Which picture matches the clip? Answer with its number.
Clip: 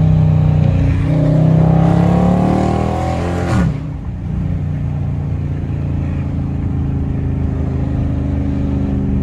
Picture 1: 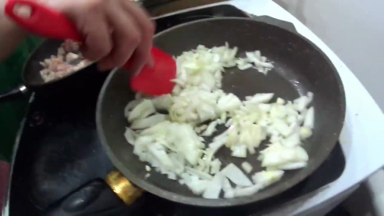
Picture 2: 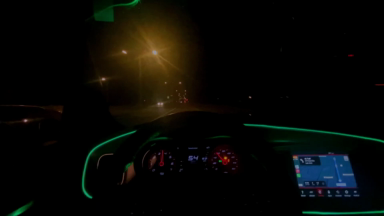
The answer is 2